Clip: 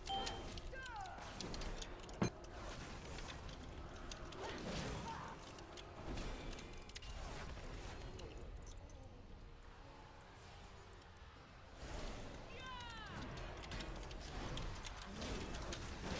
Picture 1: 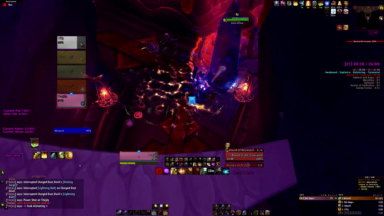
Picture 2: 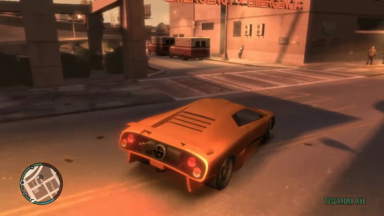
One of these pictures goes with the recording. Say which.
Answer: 1